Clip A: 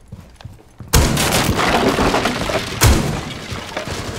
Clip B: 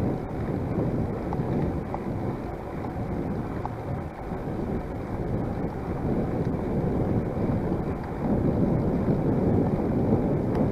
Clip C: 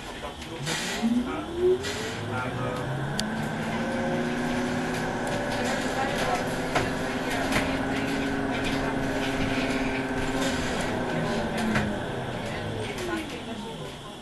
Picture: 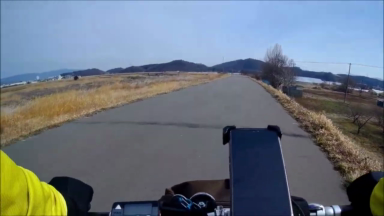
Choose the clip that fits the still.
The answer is B